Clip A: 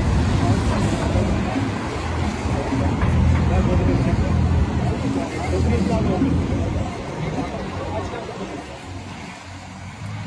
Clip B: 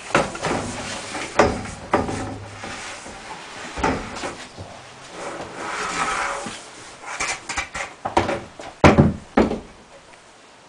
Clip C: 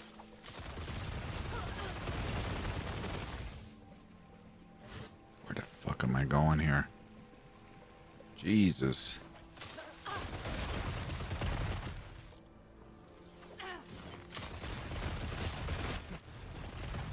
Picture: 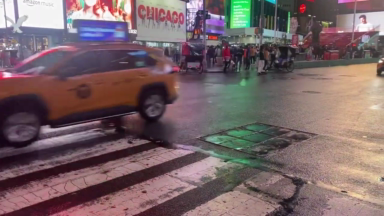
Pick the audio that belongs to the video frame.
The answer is A